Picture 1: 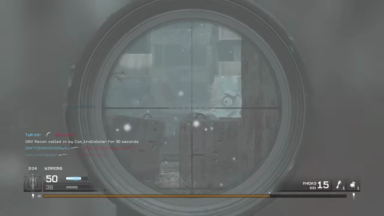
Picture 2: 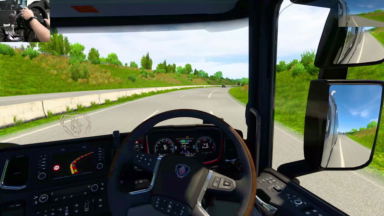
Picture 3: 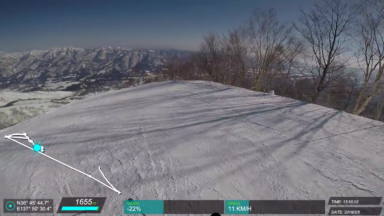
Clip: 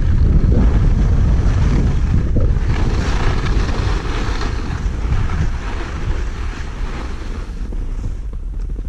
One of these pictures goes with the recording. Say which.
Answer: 3